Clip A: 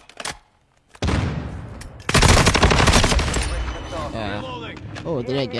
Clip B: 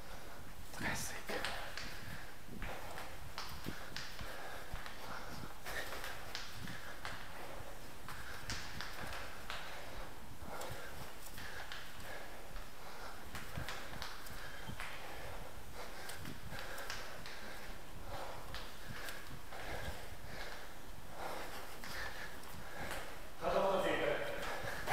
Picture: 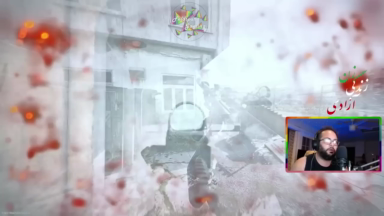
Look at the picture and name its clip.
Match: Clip A